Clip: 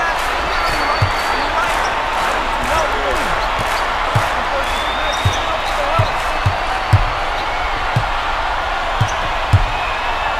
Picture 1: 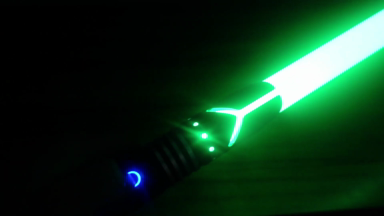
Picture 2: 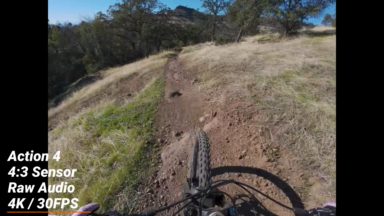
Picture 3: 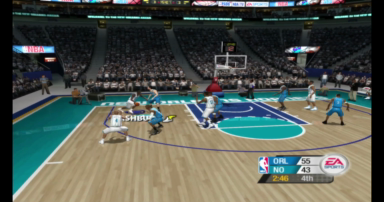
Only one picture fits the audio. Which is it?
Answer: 3